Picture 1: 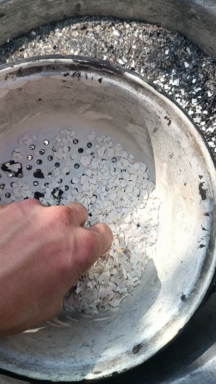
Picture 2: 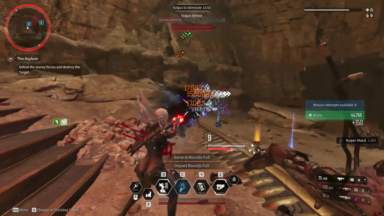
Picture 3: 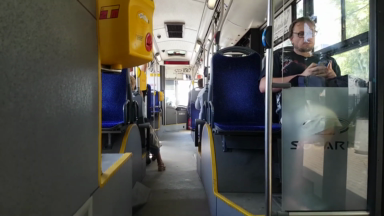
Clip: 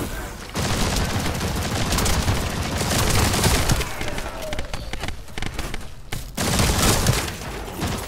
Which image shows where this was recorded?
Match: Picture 2